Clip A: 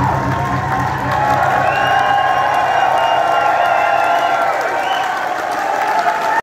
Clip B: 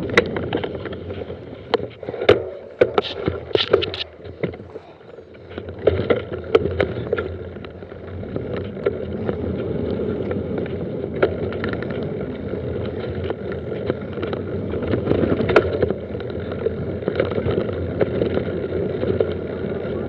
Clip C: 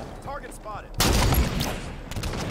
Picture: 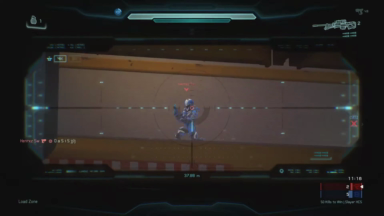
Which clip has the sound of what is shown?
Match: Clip C